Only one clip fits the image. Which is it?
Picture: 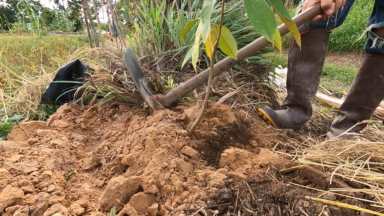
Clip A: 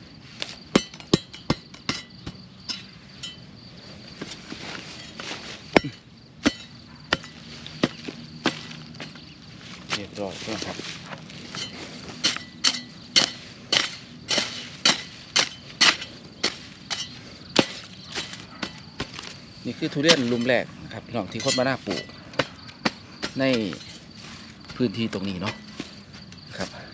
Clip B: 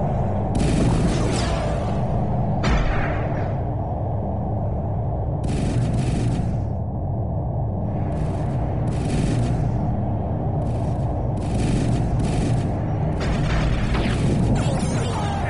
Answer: A